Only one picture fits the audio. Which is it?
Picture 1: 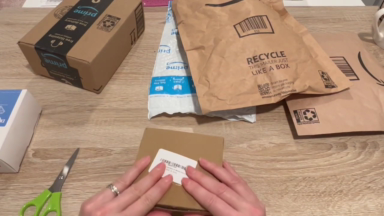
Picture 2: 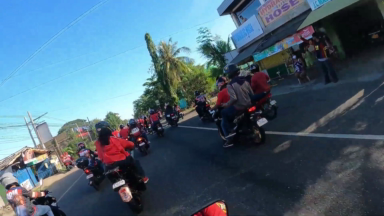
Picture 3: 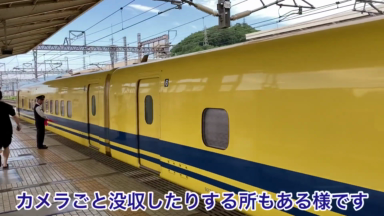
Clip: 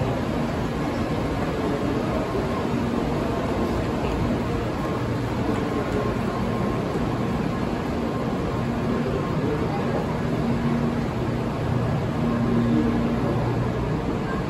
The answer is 3